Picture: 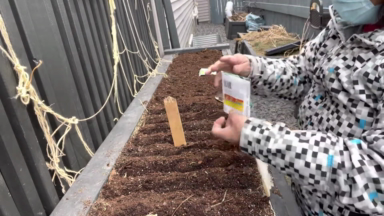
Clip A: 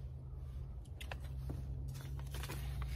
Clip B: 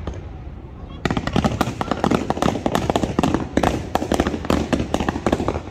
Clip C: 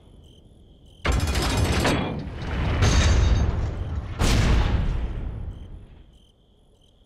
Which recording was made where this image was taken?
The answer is A